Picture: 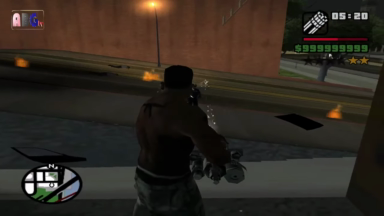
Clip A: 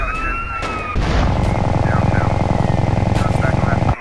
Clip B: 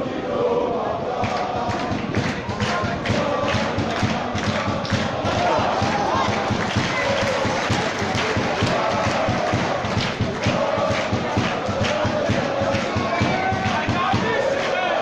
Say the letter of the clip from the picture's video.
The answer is A